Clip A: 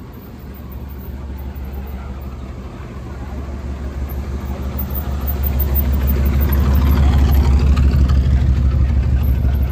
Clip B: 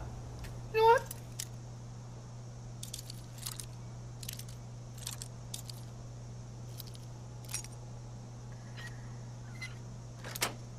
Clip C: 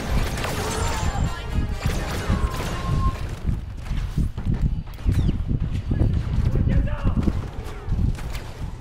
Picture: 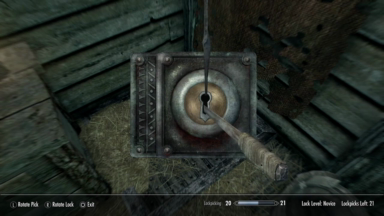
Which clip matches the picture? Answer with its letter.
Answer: B